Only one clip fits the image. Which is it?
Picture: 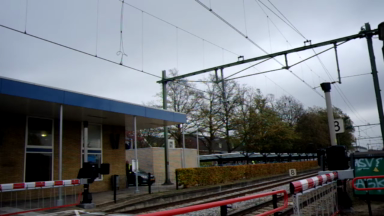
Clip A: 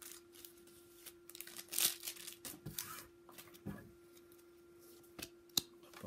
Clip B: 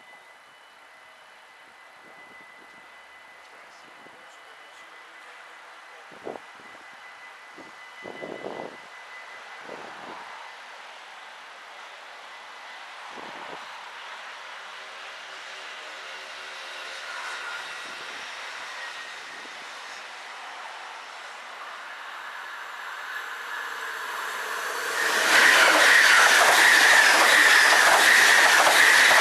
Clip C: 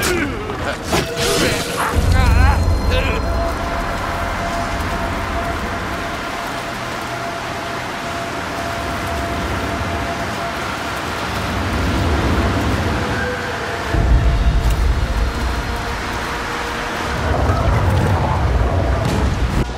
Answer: B